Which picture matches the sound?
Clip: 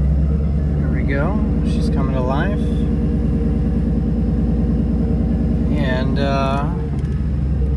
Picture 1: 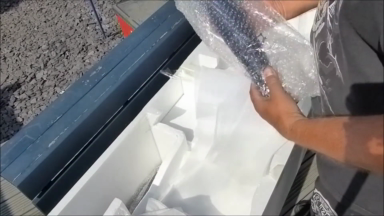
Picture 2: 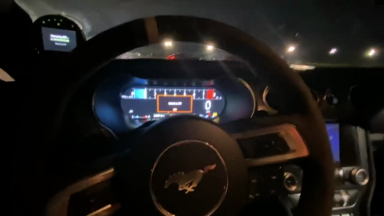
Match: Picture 2